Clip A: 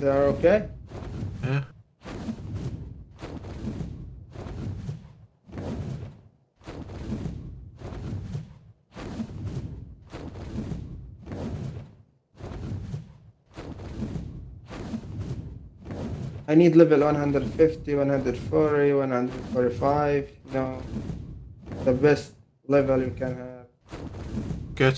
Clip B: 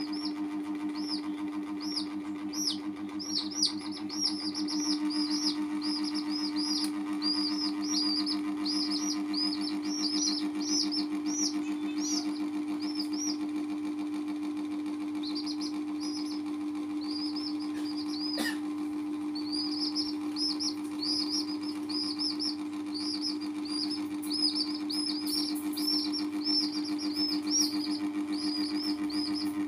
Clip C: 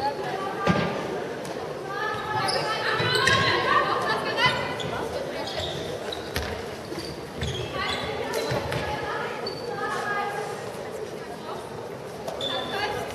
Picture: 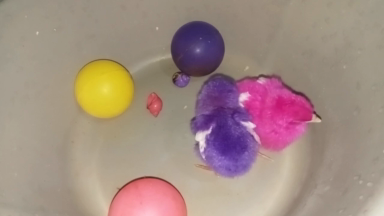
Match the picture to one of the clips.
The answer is B